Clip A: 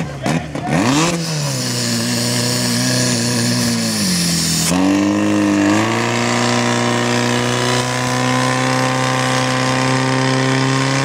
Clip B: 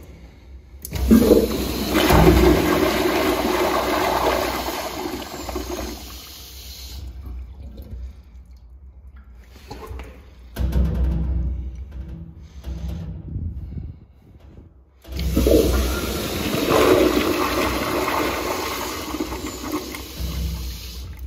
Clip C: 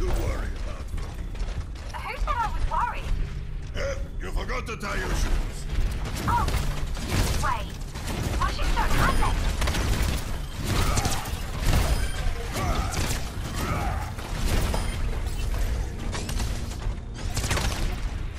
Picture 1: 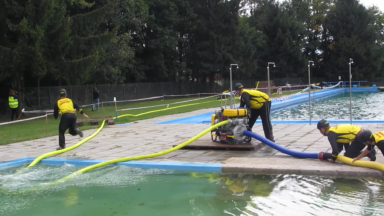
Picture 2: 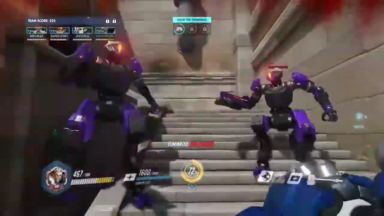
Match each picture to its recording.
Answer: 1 A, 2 C